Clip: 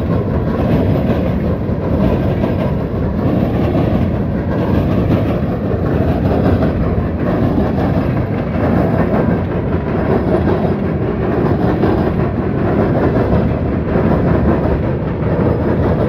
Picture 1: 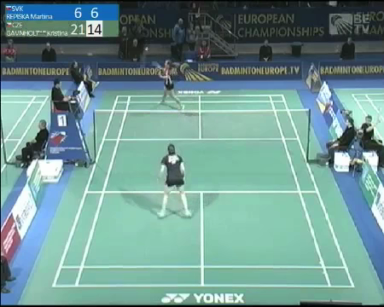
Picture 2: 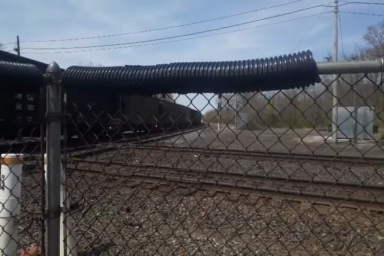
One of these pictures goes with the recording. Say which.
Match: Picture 2